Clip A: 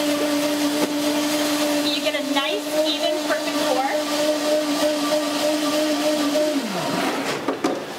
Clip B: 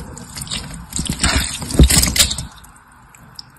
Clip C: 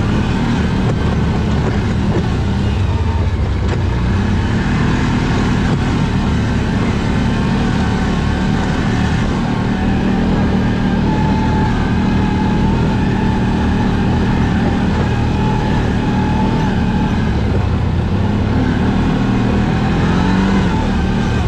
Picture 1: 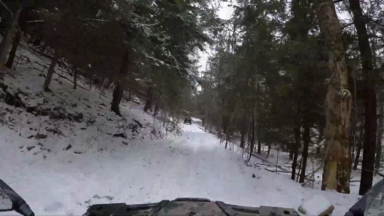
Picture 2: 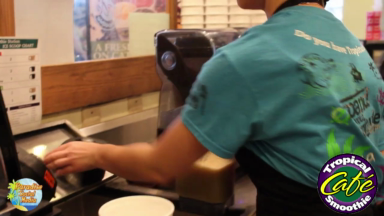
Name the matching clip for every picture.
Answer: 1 C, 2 A